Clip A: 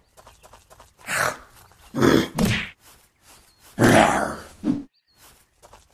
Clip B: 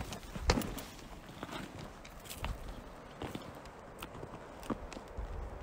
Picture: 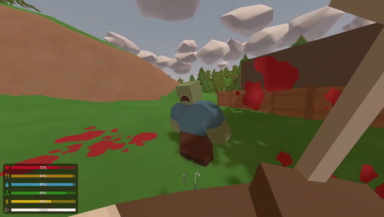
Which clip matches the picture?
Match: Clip A